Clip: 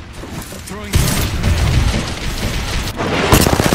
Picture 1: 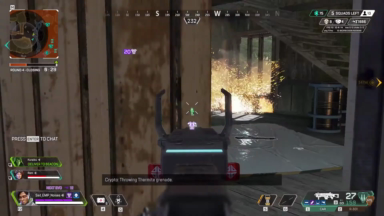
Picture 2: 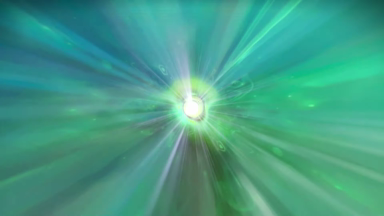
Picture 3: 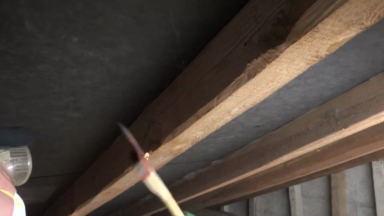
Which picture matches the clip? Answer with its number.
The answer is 1